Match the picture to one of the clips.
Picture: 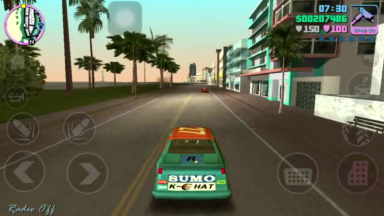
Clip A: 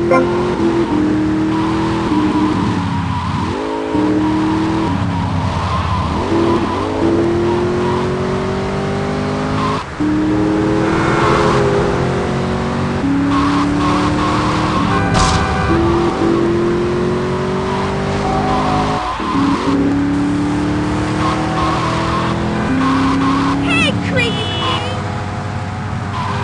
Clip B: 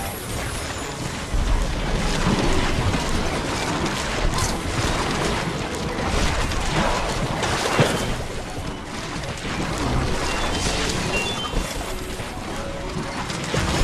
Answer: A